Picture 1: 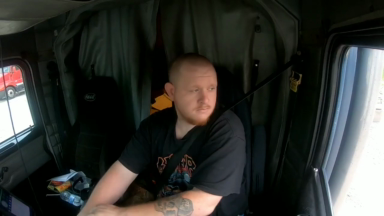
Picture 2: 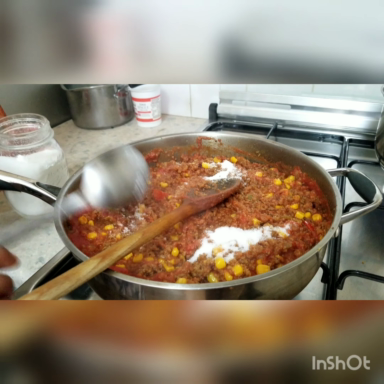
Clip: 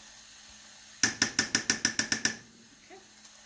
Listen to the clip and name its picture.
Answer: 2